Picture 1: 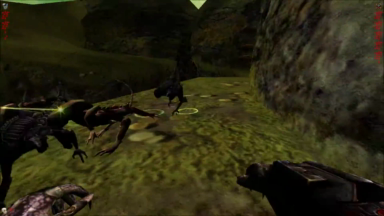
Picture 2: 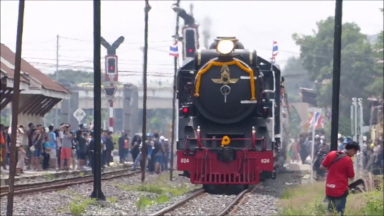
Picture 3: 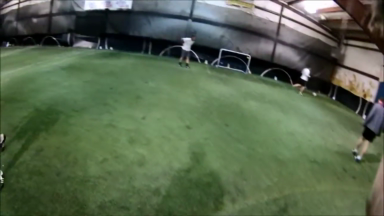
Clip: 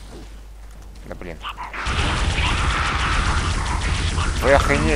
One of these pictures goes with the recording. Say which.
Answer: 1